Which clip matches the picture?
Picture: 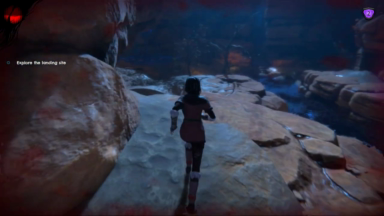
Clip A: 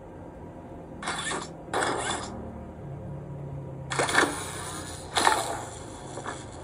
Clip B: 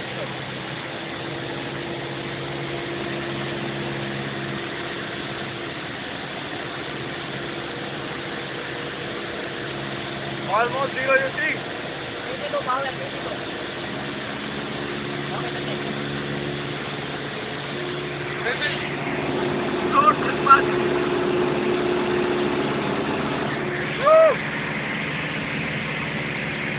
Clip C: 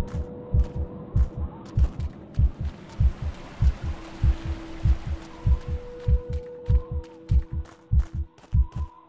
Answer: C